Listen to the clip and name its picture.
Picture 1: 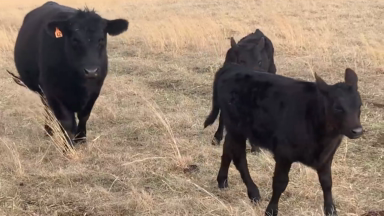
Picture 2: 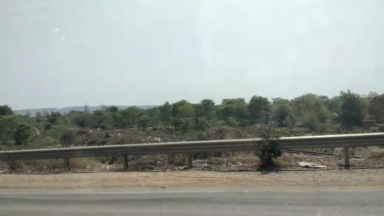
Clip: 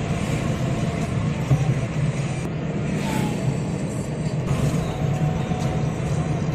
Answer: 2